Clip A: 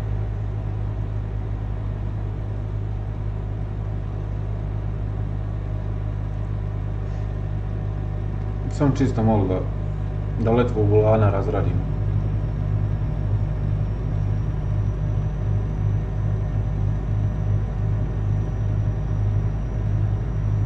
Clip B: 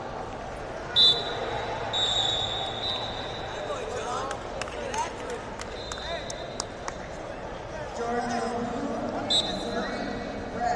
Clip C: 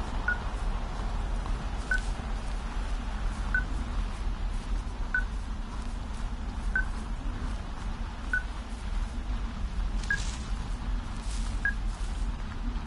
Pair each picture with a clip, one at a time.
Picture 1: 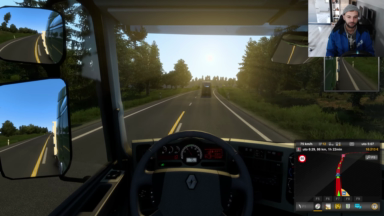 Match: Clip A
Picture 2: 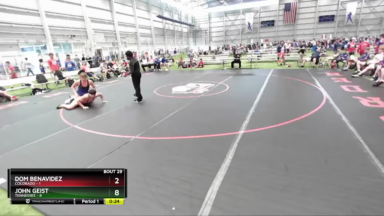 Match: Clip B